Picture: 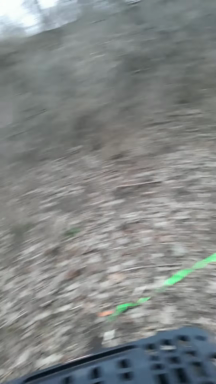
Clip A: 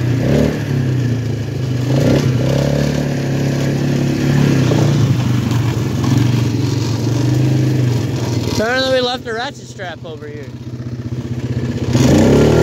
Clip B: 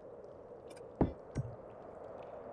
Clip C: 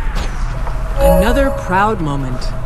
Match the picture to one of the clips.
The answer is A